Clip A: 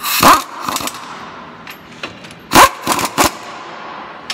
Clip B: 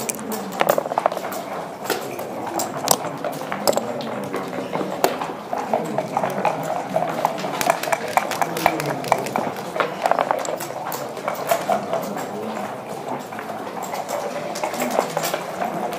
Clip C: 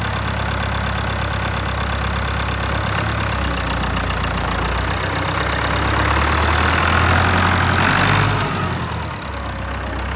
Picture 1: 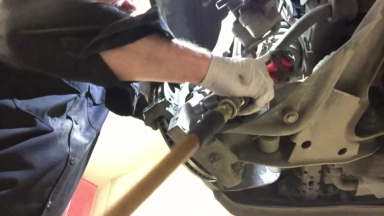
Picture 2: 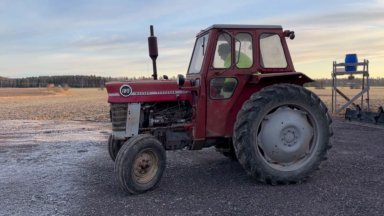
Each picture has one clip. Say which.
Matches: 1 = A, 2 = C